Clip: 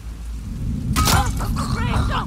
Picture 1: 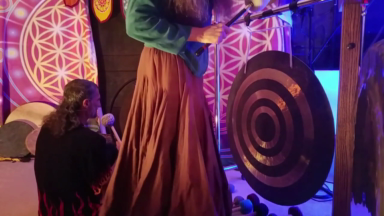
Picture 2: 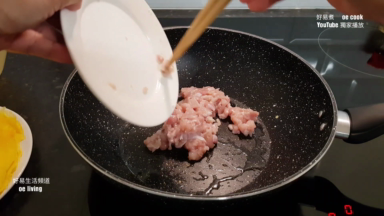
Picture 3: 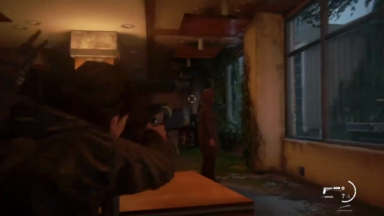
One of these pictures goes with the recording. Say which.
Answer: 3